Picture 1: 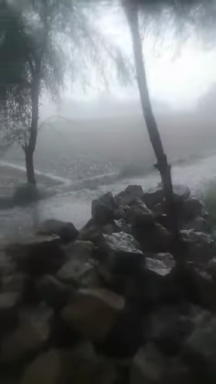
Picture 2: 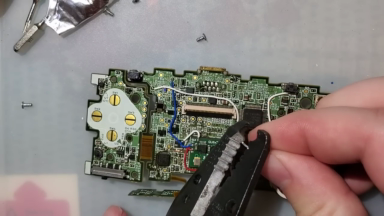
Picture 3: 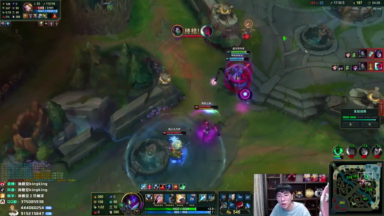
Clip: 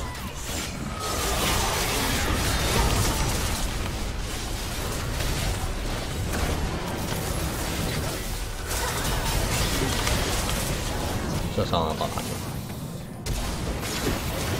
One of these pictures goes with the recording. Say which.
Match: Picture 3